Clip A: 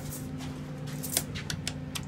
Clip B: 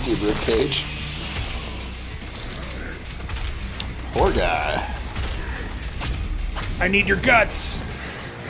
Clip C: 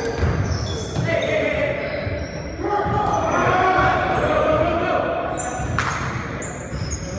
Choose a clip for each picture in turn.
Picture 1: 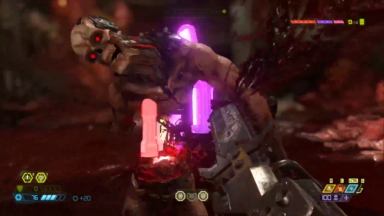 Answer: B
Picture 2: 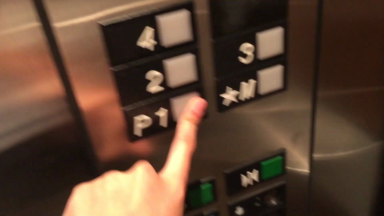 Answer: A